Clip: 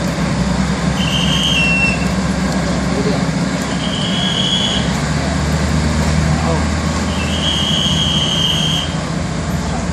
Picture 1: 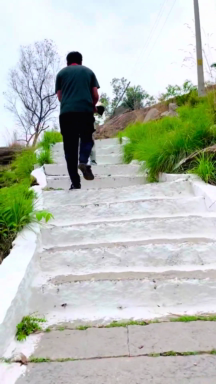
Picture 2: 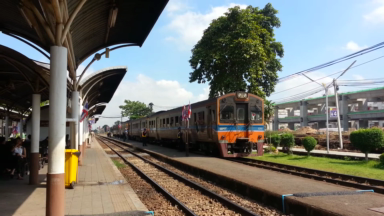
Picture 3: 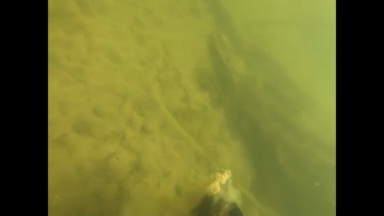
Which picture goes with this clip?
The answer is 2